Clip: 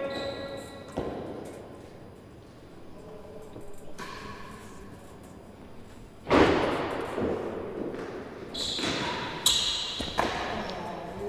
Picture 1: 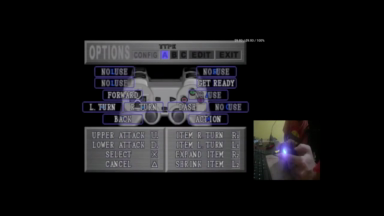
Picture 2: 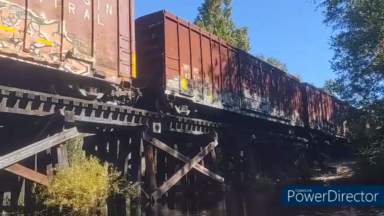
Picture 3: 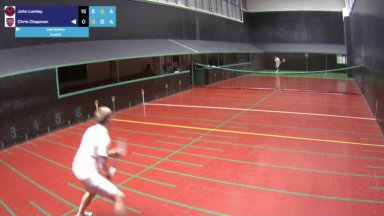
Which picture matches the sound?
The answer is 3